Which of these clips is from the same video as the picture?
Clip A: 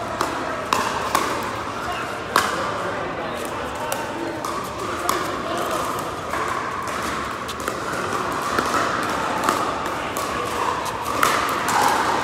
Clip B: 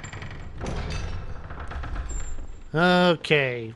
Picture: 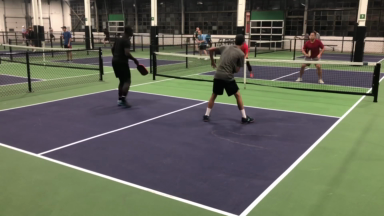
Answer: A